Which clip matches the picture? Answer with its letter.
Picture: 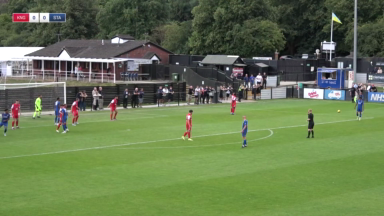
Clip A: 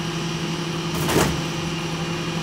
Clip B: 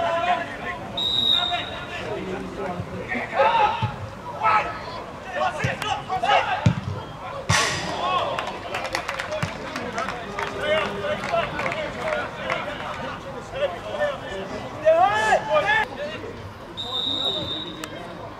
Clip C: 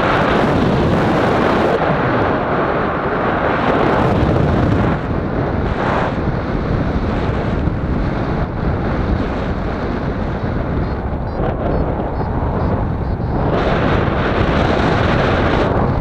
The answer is B